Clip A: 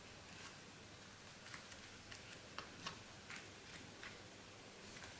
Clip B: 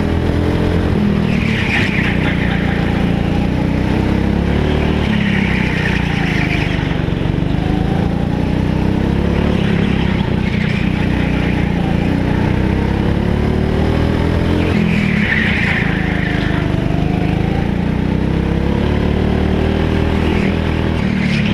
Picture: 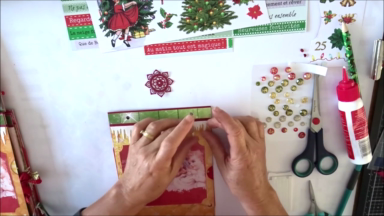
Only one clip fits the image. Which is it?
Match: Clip A